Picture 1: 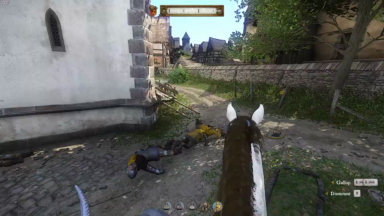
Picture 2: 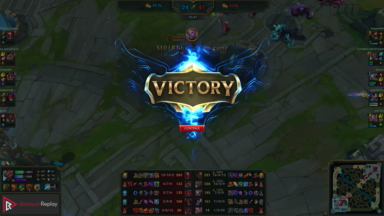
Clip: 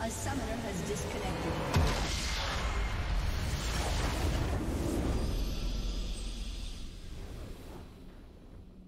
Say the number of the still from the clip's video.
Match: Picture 2